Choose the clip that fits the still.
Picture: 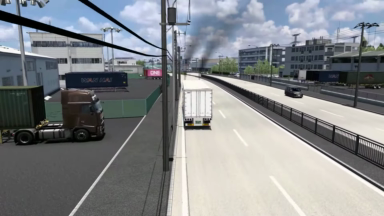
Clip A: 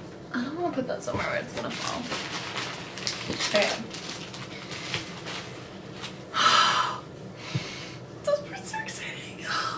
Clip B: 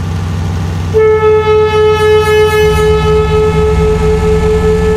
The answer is B